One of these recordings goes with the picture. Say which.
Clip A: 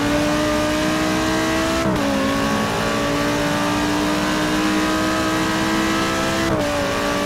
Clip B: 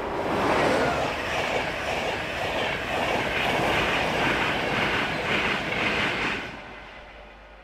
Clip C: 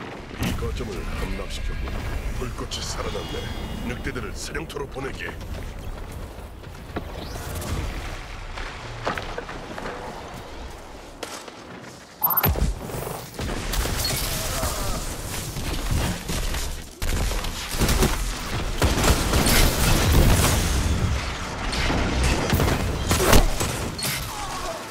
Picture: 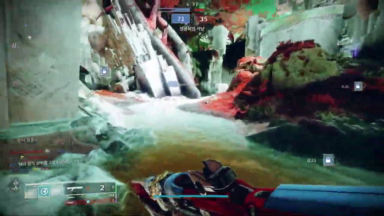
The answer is C